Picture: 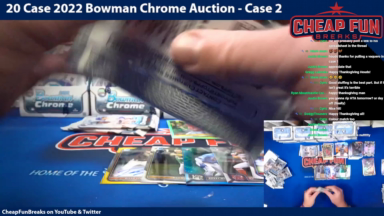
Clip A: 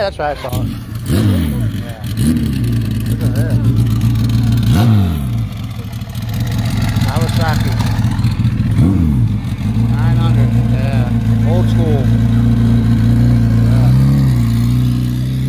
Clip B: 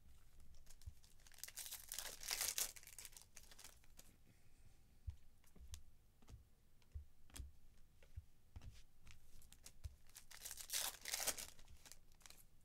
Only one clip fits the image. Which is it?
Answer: B